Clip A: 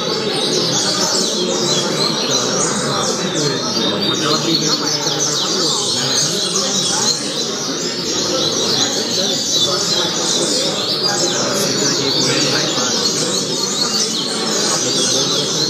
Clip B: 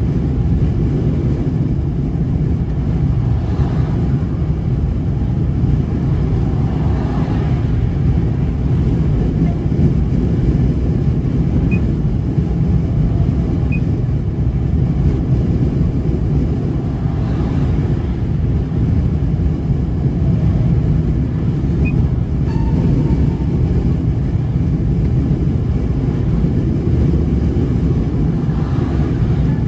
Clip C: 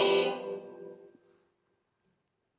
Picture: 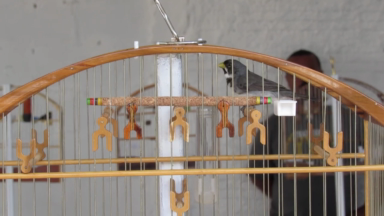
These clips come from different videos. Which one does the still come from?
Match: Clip A